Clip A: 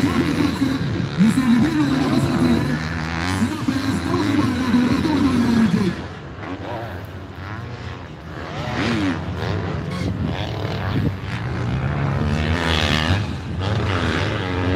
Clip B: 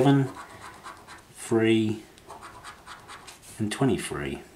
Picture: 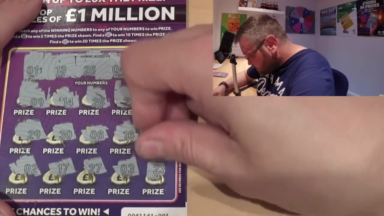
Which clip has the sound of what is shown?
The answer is B